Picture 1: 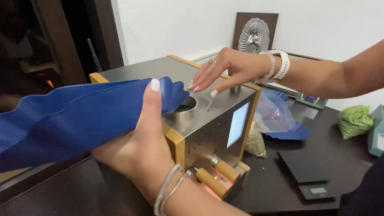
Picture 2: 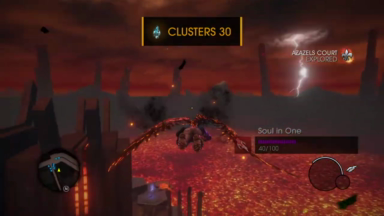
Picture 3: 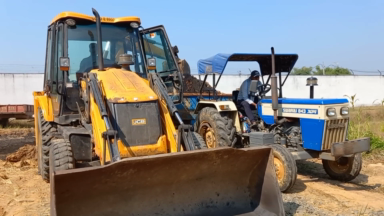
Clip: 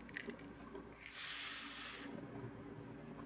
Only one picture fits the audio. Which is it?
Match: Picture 1